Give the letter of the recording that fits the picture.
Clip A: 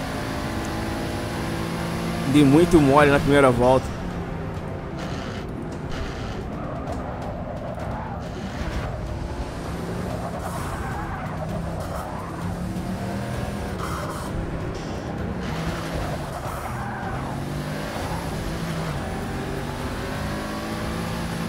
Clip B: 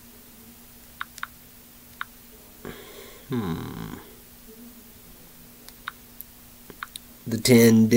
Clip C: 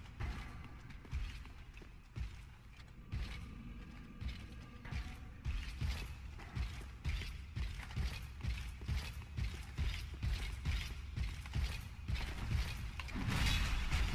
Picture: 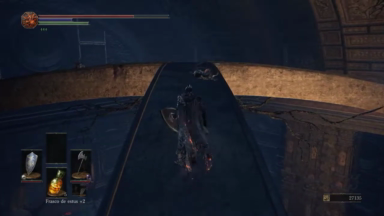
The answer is C